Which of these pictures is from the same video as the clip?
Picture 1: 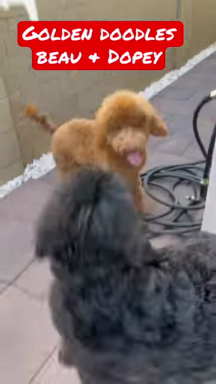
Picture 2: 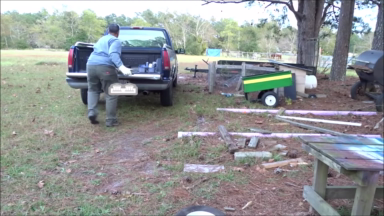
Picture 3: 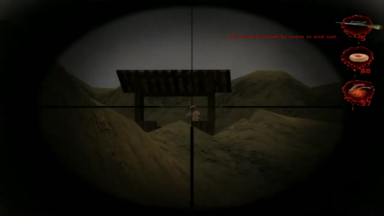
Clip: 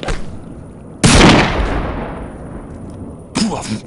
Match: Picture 3